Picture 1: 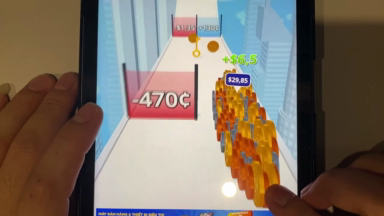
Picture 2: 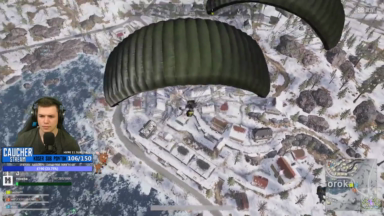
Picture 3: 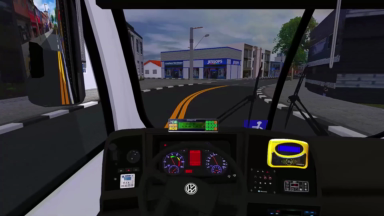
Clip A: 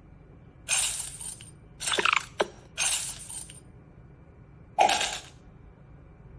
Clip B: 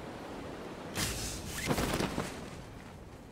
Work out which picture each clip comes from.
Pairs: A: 1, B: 2